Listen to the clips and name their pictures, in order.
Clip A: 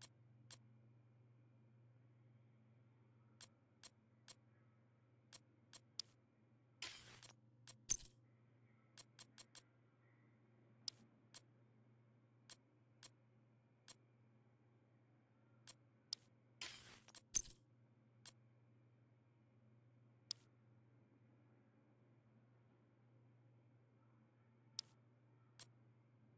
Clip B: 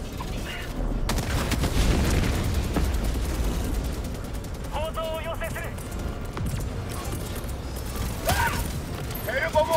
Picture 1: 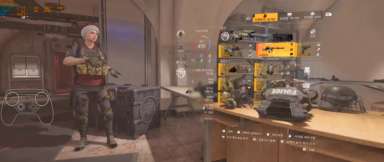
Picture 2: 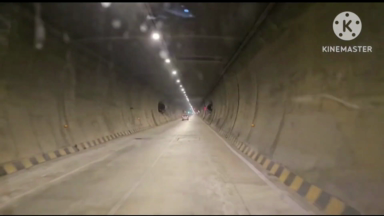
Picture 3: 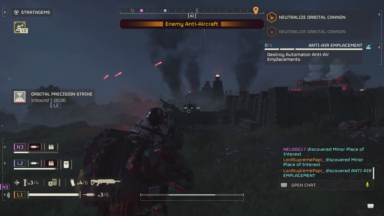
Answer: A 1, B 3